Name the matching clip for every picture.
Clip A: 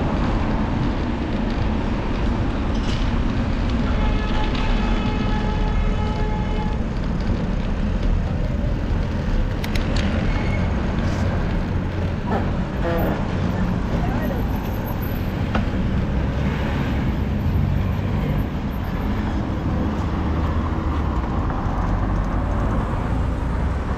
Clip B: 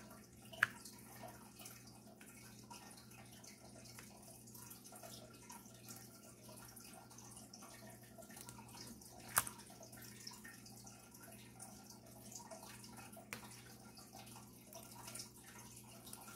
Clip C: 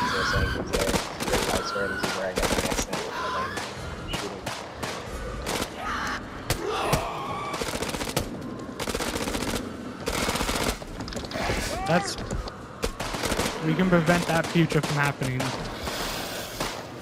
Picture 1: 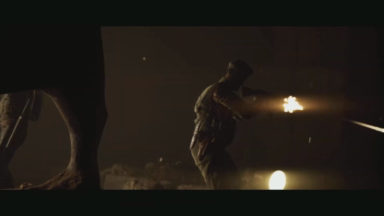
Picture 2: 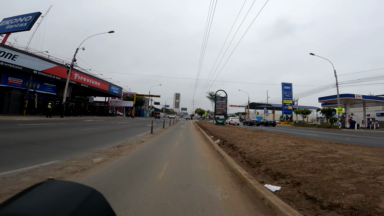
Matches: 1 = C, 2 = A